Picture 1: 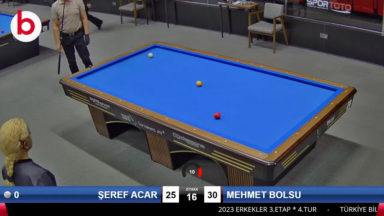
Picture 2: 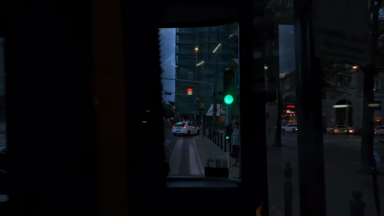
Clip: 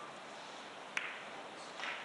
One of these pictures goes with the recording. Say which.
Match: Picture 1